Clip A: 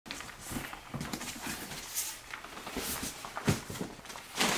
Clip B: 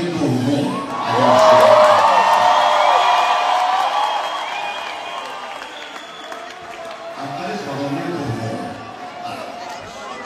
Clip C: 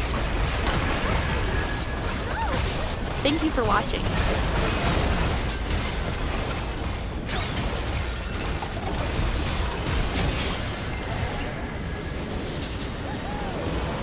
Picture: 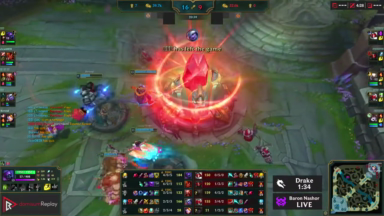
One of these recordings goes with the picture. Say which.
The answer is C